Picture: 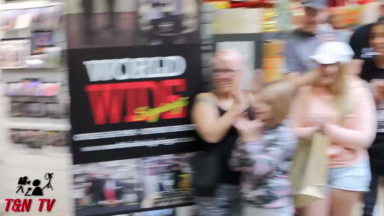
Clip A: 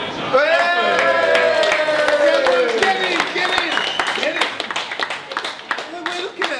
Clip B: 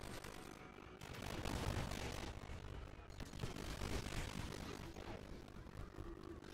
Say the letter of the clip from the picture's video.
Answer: A